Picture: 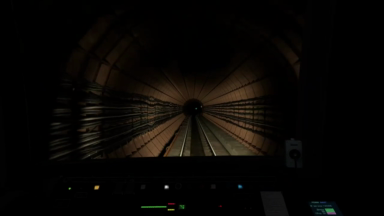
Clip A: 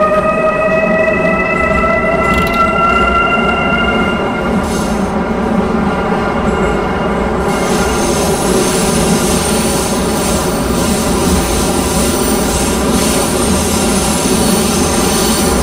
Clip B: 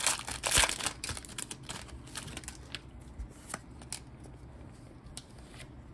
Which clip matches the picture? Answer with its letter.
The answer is A